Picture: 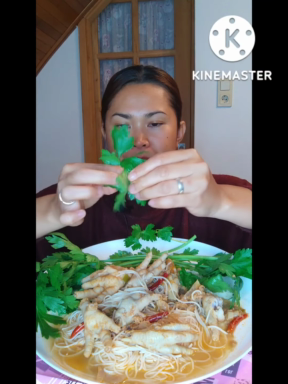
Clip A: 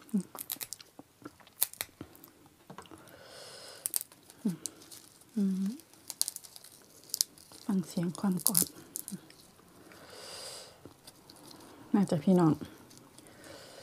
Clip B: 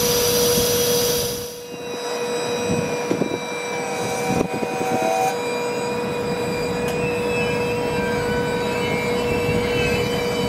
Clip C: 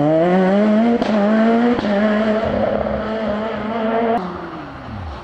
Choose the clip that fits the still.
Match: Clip A